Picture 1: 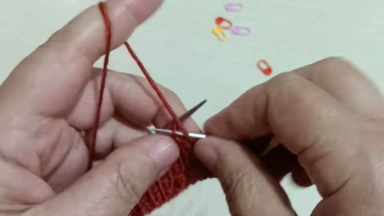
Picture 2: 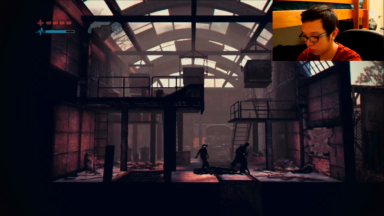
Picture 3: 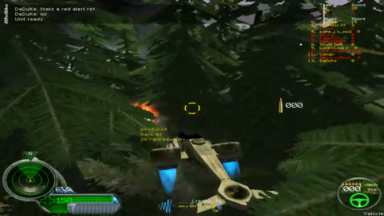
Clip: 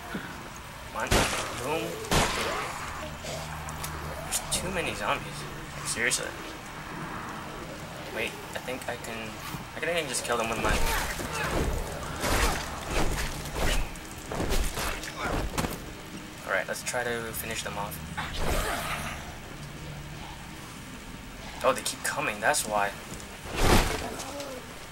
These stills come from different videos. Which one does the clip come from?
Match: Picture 2